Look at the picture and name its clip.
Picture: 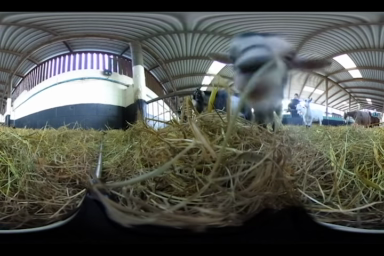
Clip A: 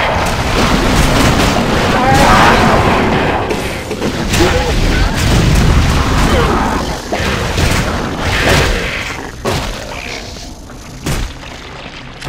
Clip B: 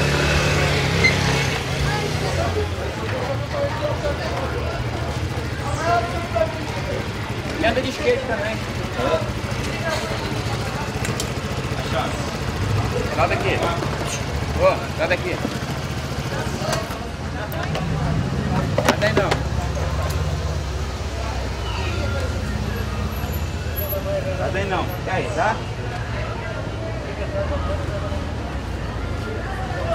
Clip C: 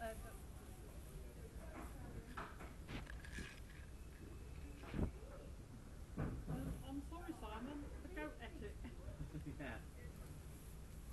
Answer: C